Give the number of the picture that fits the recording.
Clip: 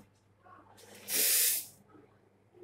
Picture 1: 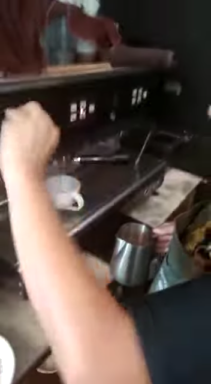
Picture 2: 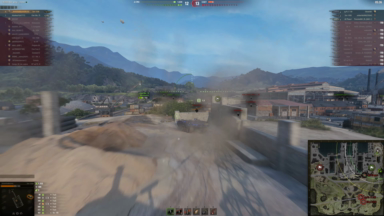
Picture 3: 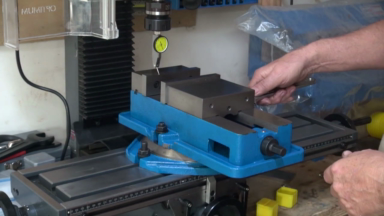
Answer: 1